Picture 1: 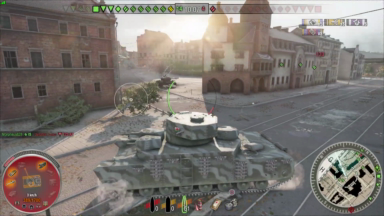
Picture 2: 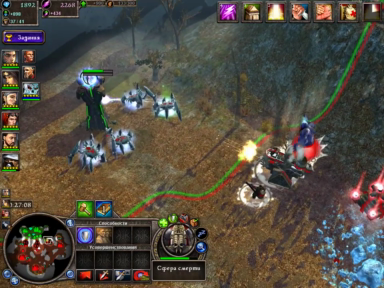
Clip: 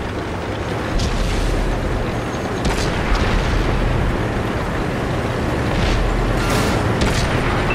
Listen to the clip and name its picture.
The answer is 1